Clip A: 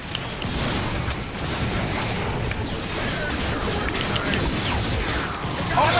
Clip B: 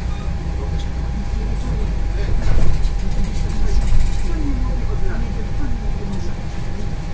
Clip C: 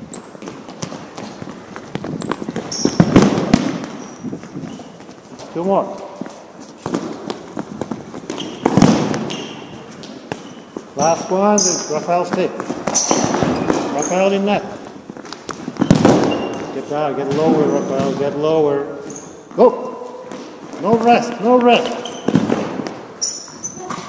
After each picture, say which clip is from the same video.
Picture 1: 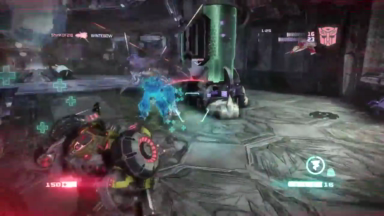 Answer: A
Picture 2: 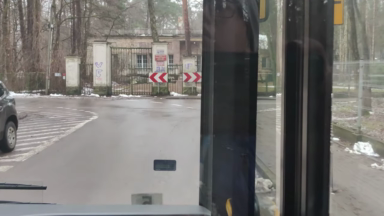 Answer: B